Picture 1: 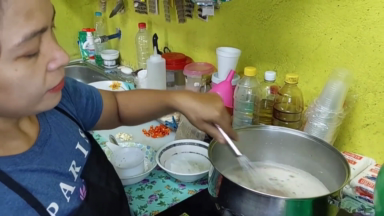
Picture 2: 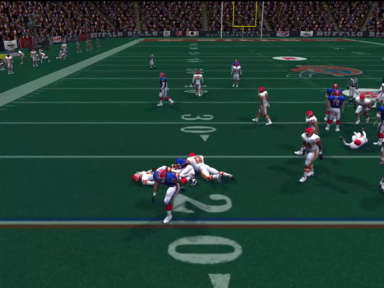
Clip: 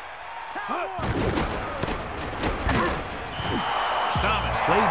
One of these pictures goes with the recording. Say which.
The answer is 2